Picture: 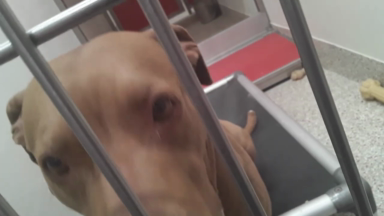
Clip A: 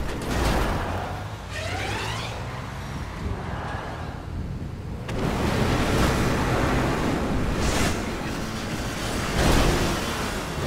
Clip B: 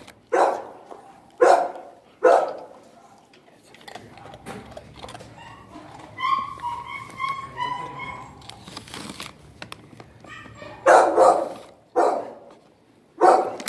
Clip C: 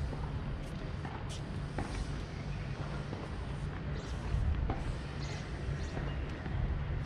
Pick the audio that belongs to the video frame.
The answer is B